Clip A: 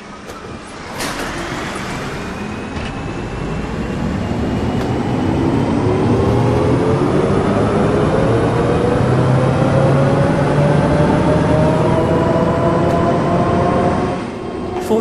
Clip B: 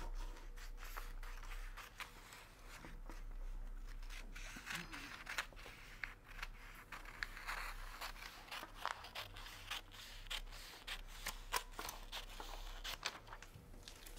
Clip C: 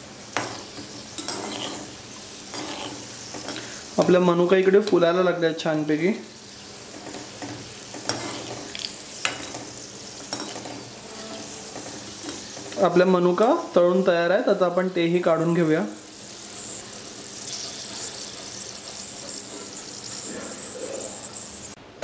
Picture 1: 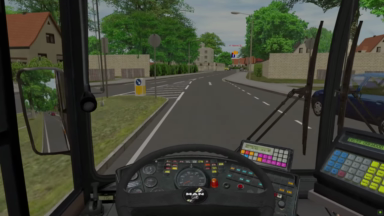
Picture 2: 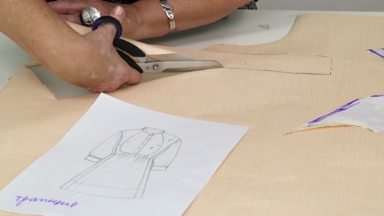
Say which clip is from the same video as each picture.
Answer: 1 A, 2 B